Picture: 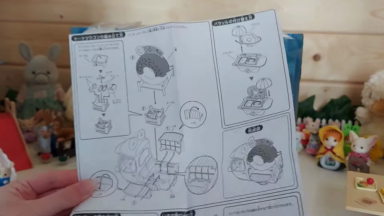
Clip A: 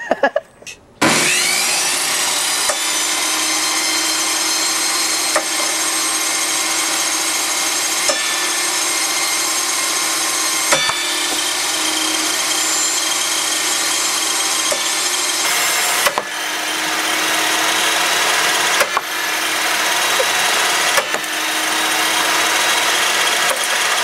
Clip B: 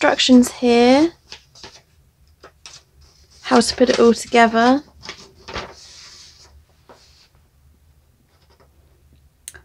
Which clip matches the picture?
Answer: B